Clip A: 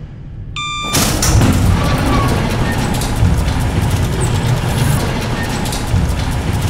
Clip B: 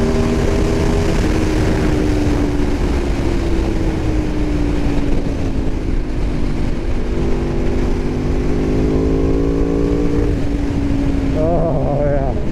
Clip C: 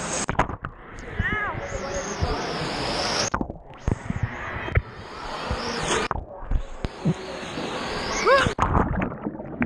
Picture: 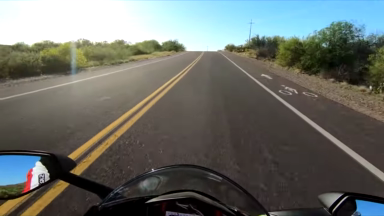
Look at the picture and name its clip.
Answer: B